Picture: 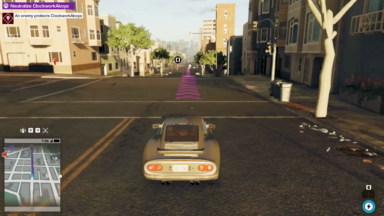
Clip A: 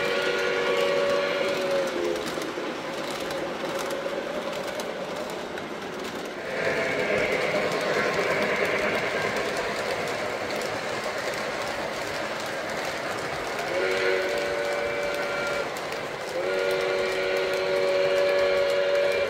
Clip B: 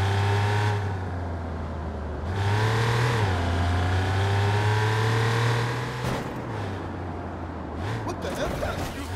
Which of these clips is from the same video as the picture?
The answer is B